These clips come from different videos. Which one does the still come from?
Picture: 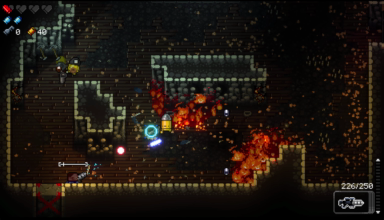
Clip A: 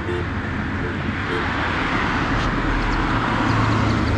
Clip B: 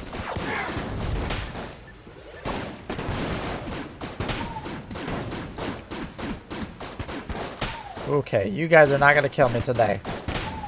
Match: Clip B